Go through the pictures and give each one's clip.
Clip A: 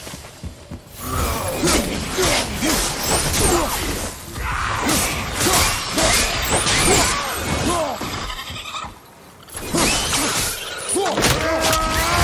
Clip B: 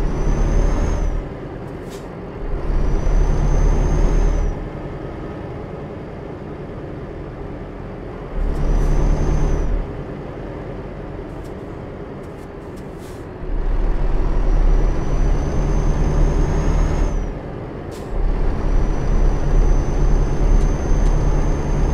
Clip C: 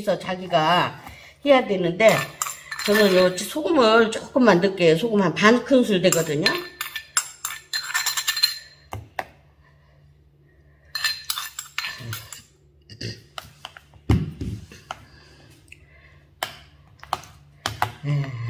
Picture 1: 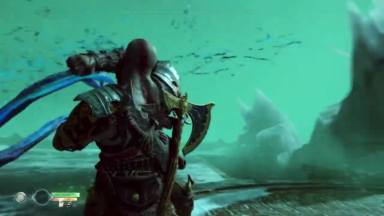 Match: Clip A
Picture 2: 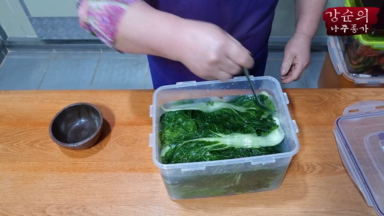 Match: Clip C